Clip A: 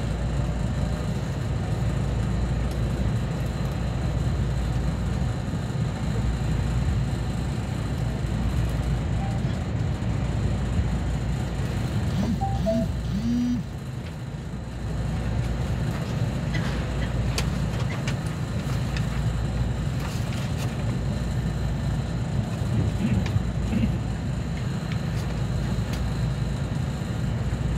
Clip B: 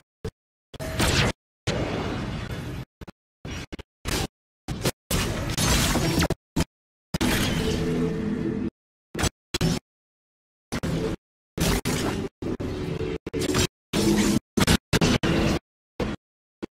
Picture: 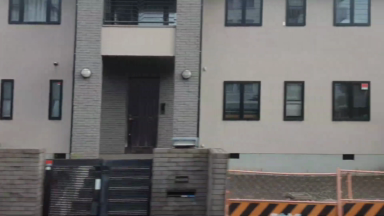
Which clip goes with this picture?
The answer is A